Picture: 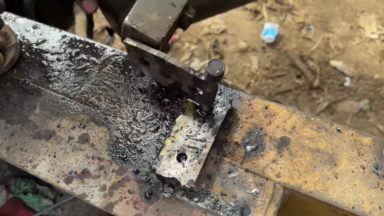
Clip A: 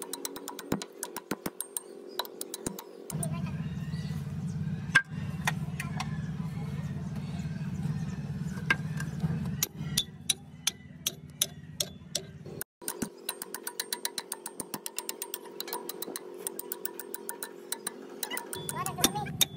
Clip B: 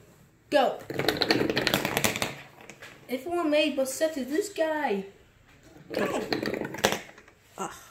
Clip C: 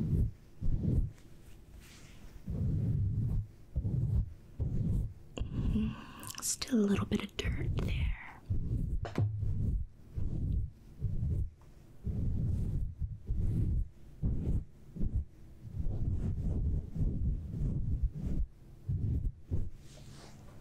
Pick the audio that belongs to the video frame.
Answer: A